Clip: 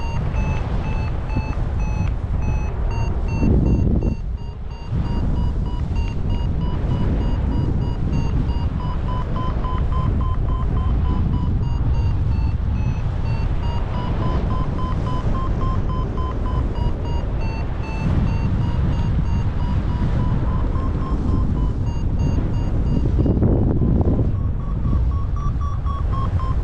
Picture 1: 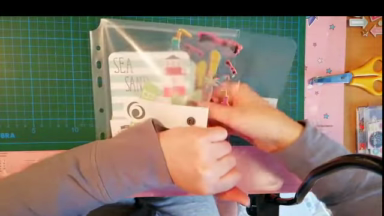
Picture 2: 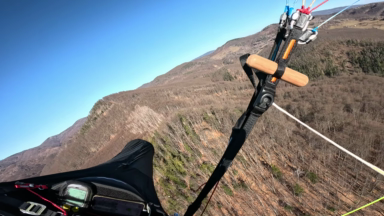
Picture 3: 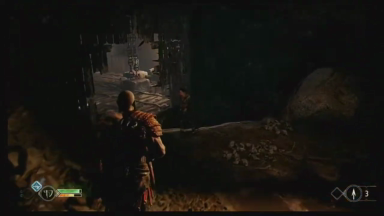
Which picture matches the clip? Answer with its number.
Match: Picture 2